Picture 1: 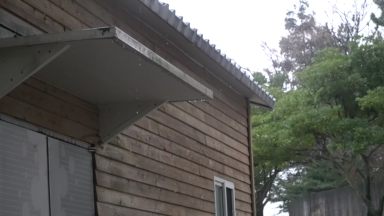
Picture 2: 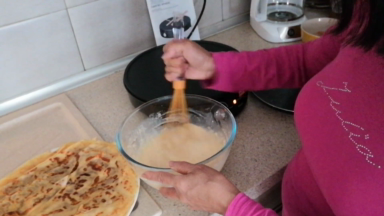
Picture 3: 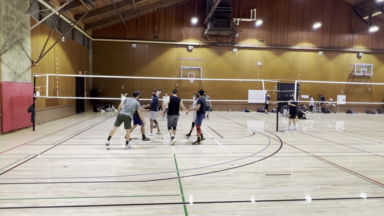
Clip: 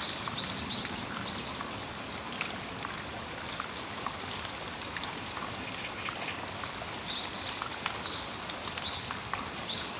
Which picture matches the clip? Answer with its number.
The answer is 1